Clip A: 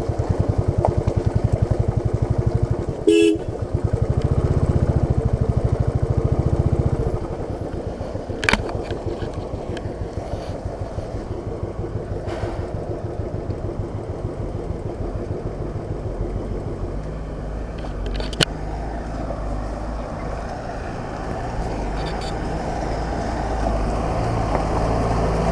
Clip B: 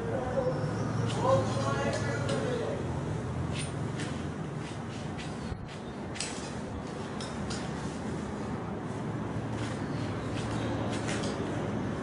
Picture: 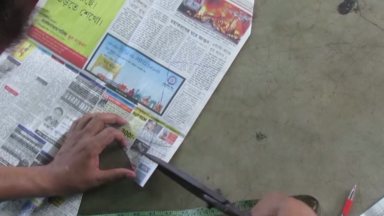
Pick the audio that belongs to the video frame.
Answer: B